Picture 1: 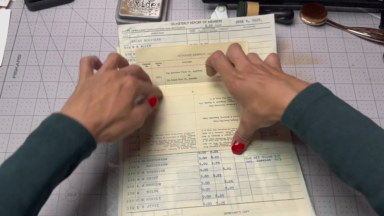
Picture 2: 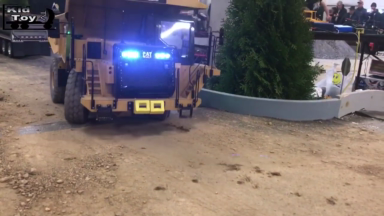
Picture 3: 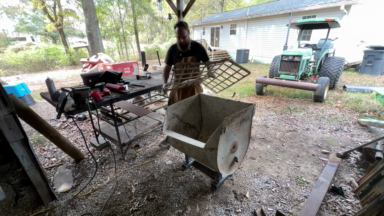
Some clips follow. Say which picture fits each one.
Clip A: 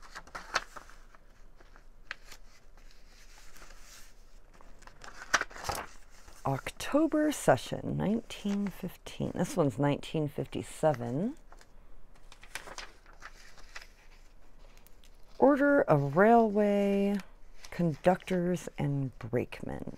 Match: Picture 1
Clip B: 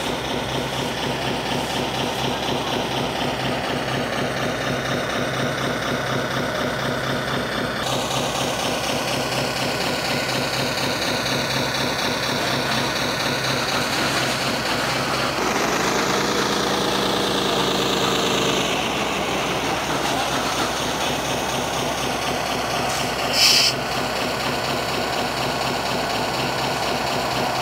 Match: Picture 2